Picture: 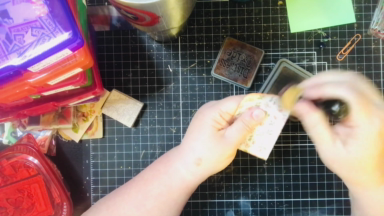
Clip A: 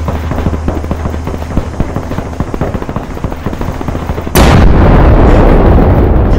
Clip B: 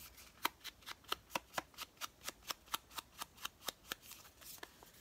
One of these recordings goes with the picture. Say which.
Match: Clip B